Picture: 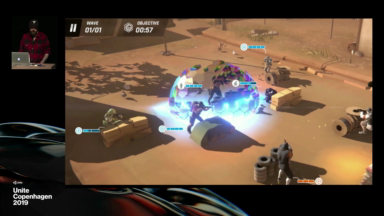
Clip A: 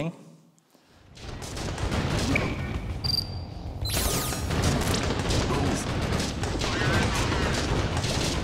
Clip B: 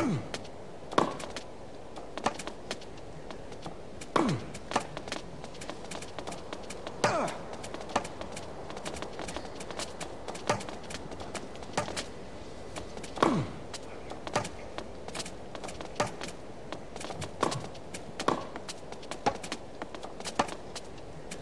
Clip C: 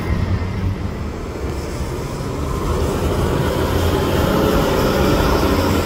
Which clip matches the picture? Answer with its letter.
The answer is A